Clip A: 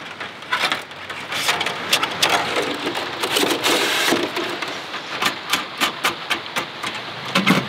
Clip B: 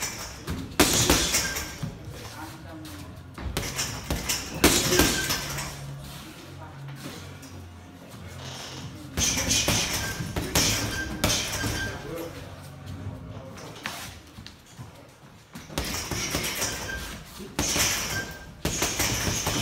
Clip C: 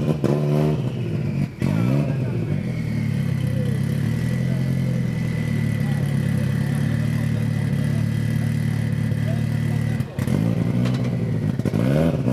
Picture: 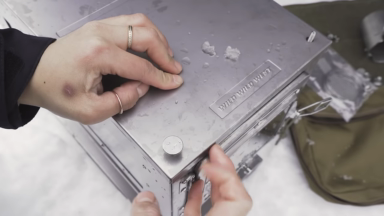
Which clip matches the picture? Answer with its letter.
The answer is A